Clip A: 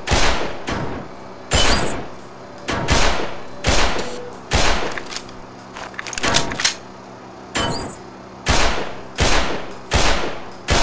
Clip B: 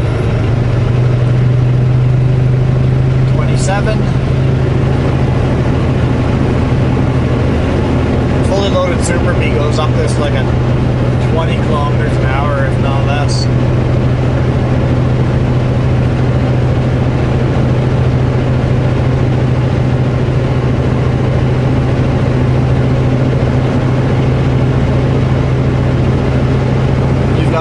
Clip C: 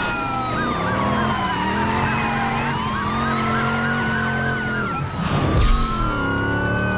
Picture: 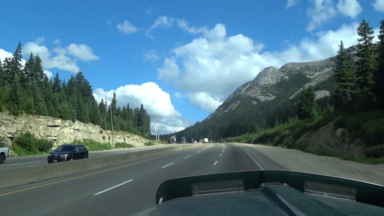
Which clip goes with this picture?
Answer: B